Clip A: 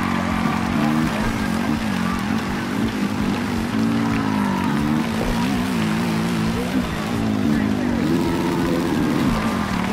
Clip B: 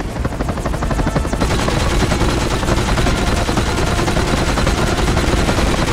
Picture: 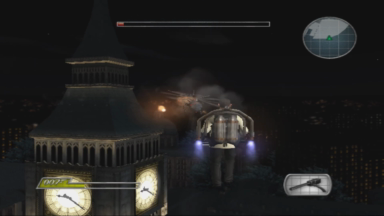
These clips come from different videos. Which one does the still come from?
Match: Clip B